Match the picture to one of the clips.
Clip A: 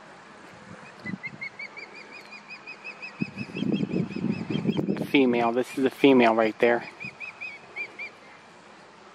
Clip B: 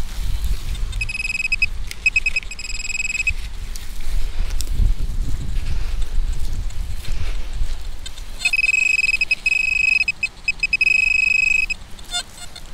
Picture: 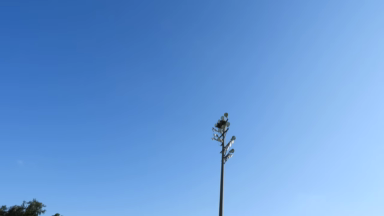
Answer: A